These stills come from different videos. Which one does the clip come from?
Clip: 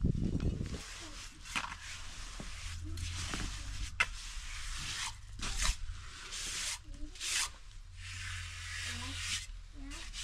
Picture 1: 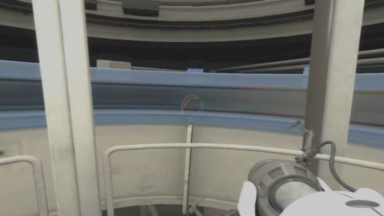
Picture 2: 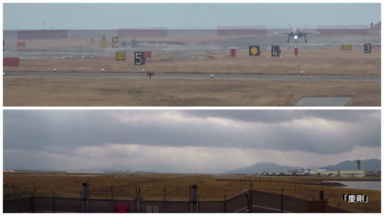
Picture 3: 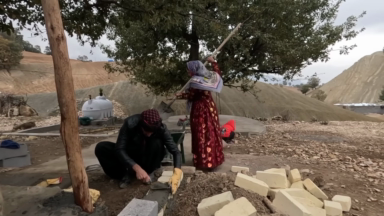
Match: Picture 3